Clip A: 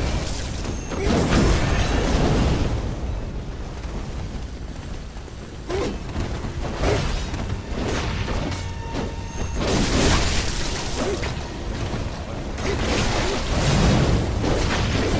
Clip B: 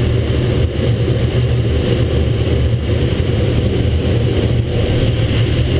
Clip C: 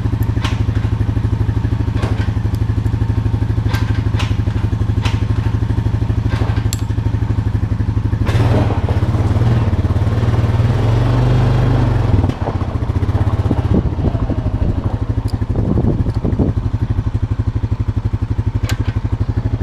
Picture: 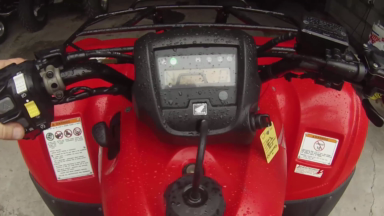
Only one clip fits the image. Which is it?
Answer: C